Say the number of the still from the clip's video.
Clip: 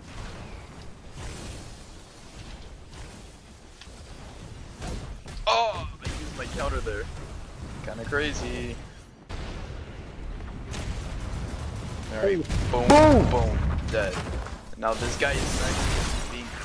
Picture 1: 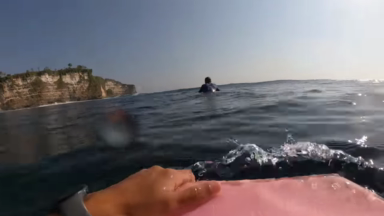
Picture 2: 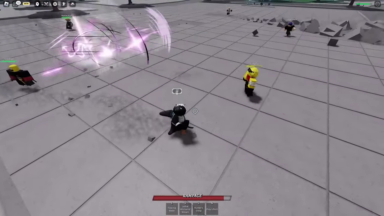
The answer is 2